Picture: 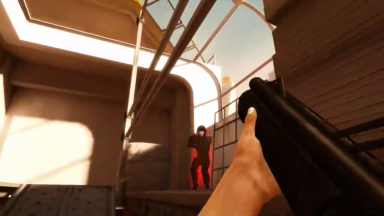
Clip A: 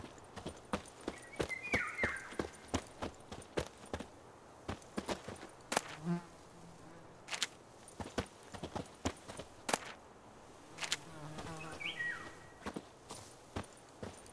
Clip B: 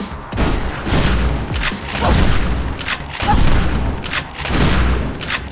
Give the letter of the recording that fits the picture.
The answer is B